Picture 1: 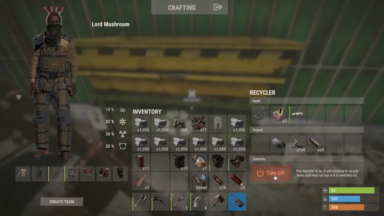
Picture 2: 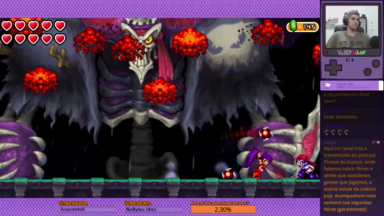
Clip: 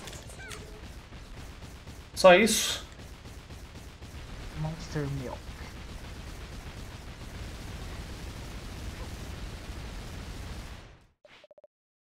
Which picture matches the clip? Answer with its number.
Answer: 2